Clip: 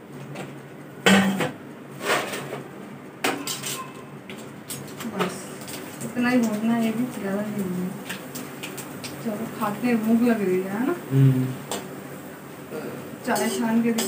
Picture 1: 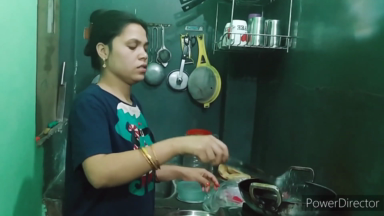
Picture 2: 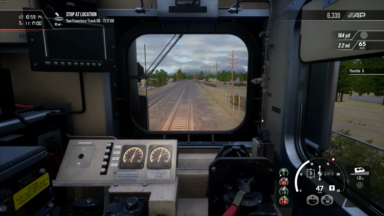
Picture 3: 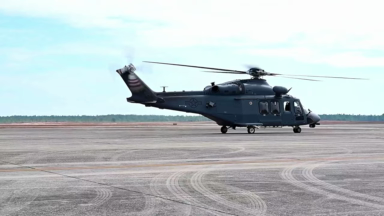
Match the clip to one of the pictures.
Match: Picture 1